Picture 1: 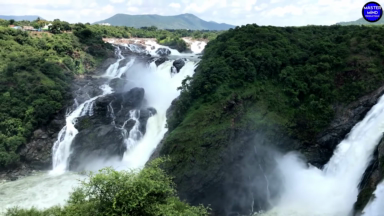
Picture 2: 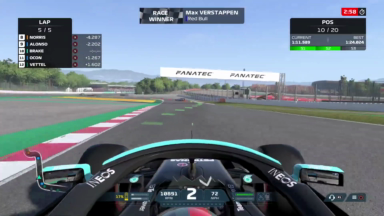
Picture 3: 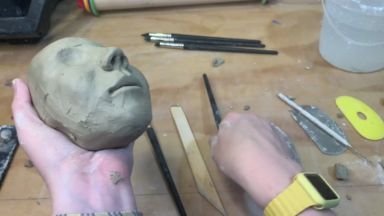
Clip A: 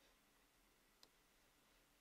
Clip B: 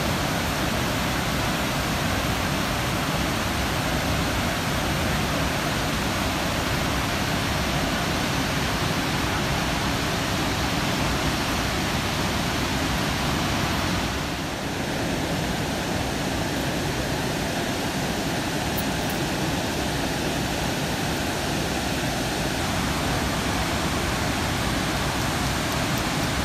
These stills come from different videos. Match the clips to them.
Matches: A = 3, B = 1